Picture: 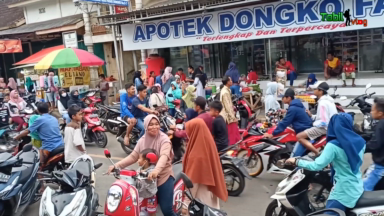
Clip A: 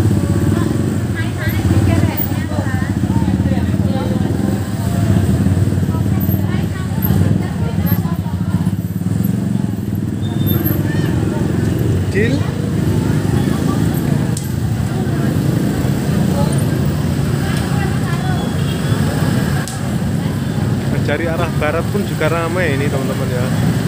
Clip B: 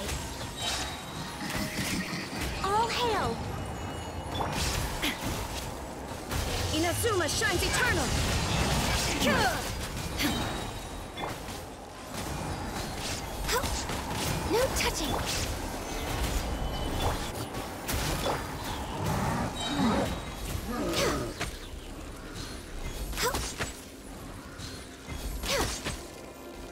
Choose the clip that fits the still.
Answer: A